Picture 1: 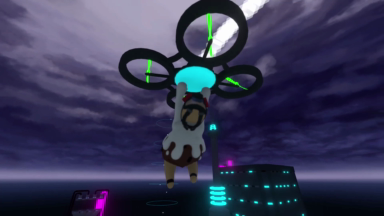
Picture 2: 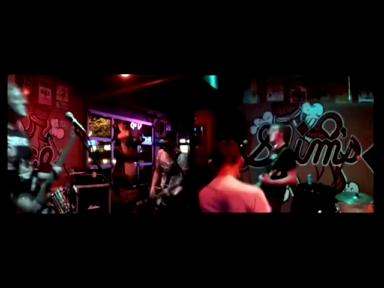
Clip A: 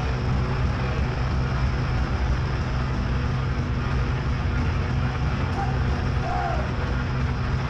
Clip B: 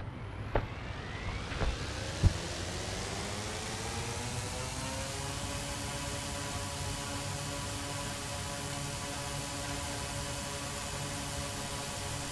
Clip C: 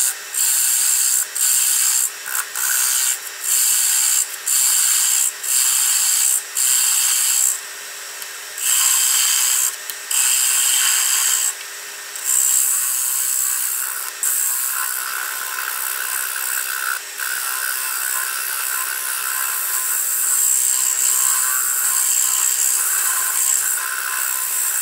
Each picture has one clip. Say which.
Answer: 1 B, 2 A